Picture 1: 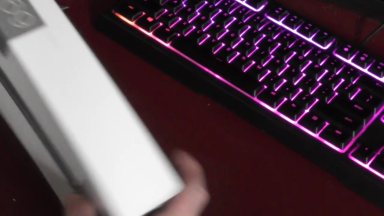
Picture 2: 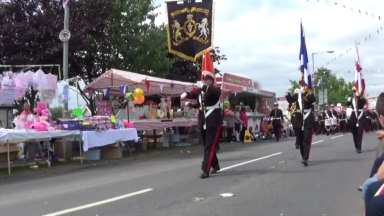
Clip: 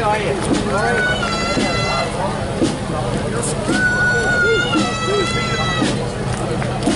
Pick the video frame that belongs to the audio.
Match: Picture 2